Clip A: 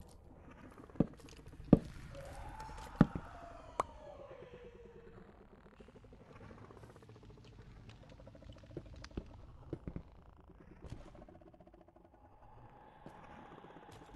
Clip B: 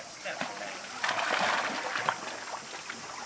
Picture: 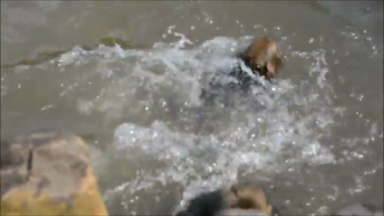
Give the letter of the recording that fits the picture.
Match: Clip B